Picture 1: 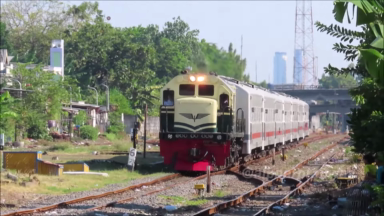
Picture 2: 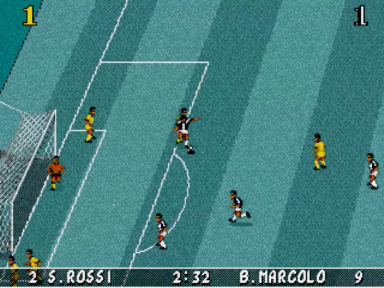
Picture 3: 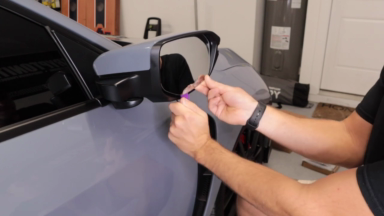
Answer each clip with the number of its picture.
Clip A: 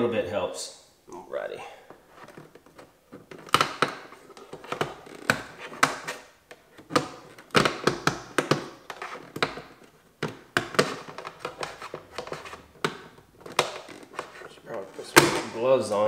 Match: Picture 3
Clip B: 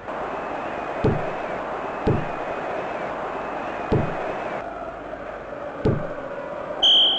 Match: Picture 2